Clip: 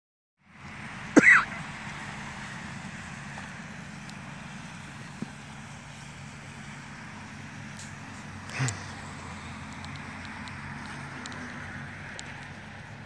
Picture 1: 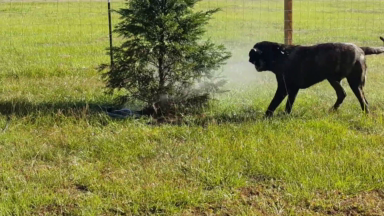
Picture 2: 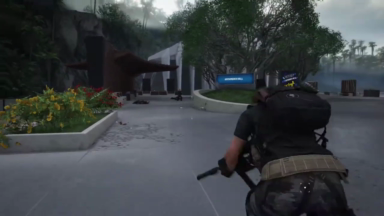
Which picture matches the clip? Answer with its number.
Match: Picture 1